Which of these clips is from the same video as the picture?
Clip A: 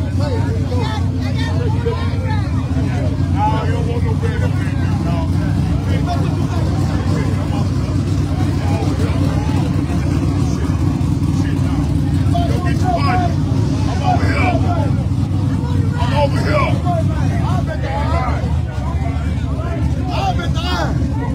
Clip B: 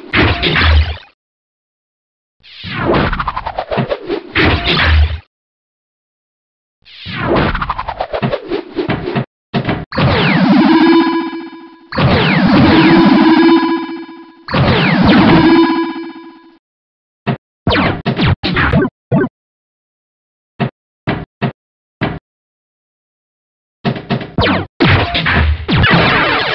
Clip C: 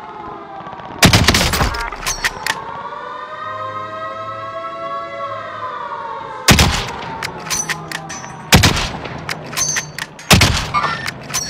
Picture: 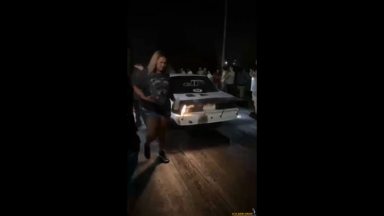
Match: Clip A